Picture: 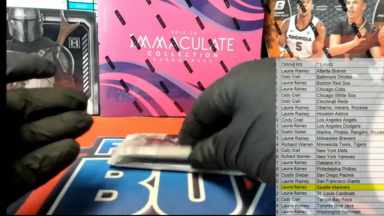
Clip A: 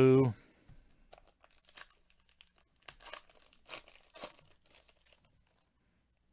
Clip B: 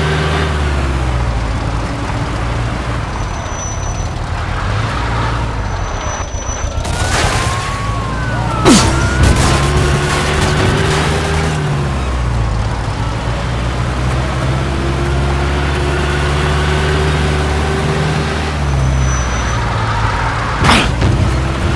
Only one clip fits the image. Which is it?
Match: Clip A